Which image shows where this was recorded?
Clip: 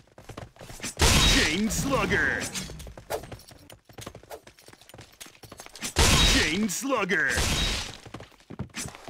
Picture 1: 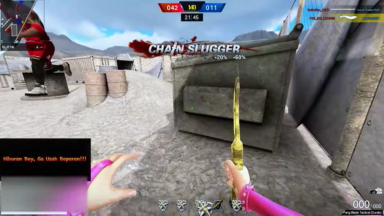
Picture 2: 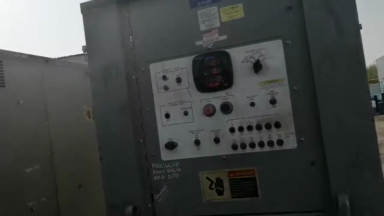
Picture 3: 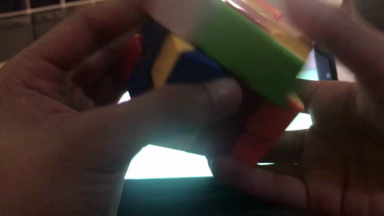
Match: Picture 1